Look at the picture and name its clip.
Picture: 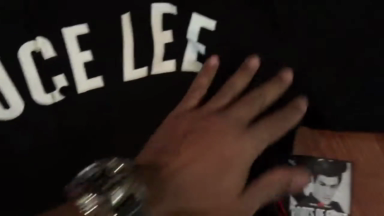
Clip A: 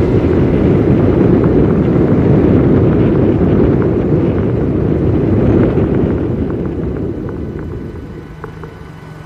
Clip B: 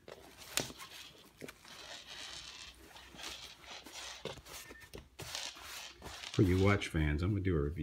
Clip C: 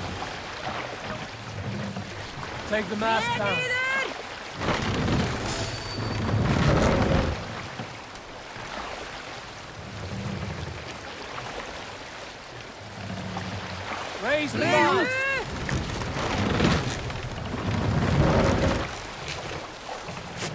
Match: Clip B